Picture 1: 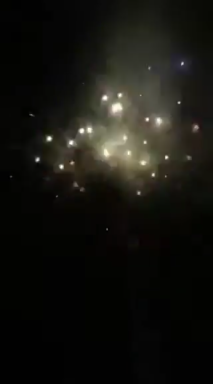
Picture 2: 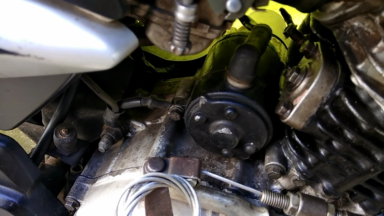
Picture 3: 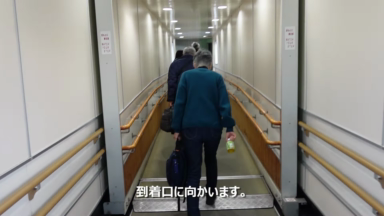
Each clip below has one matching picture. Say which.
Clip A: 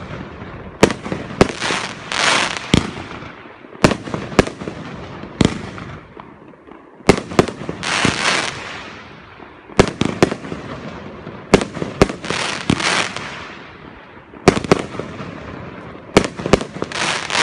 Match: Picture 1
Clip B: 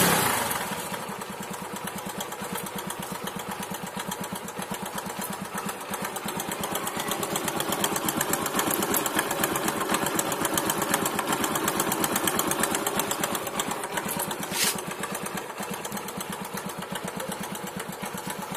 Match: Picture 2